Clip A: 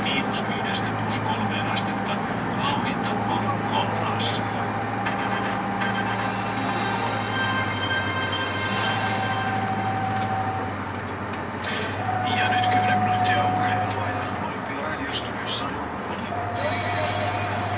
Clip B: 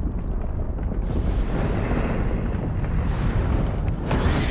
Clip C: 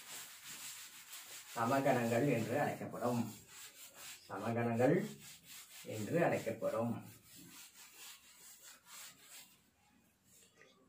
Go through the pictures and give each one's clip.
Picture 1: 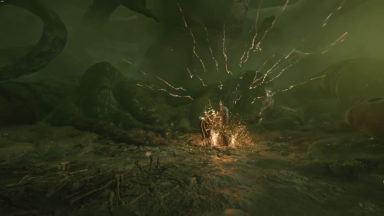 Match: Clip B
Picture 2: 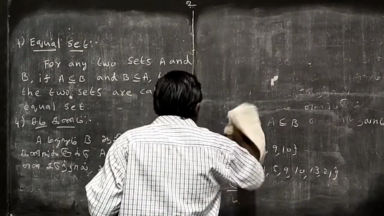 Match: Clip C